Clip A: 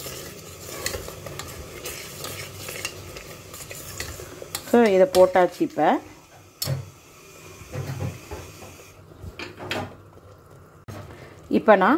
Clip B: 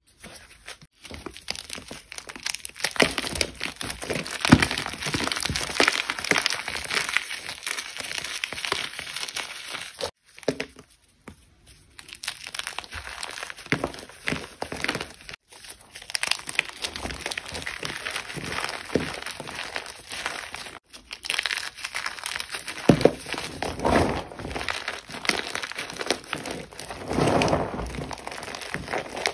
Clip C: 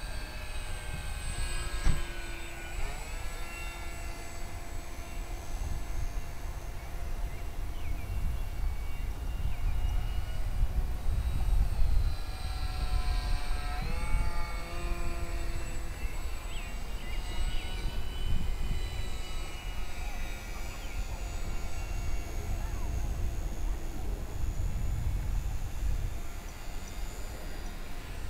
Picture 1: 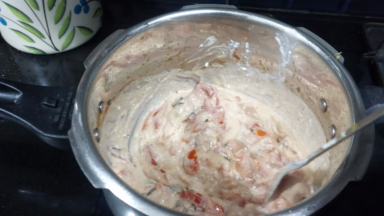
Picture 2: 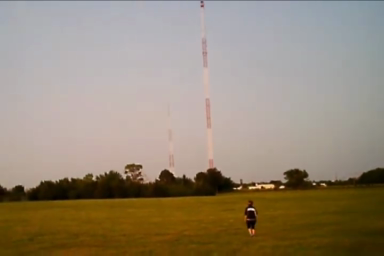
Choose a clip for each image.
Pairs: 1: A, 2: C